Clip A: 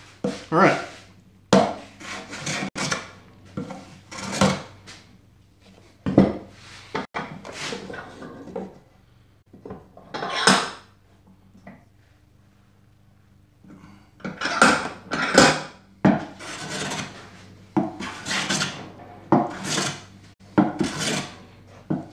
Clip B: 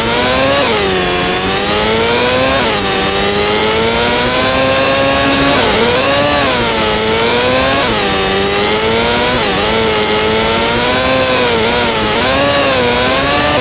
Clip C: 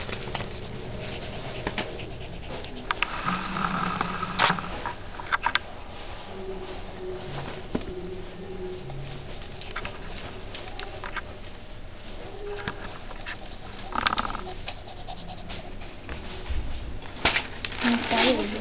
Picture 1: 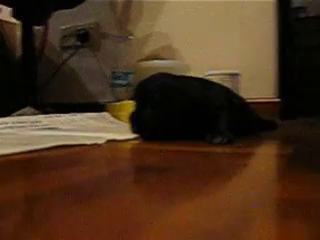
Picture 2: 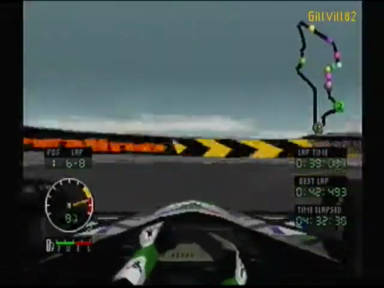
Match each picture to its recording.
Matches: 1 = C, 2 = B